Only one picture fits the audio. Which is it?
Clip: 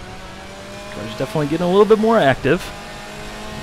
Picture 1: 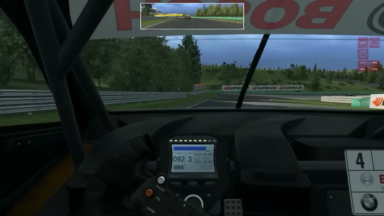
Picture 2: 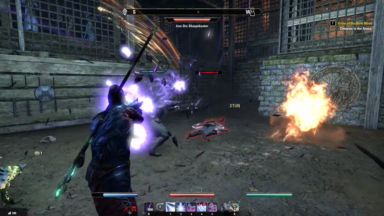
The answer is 1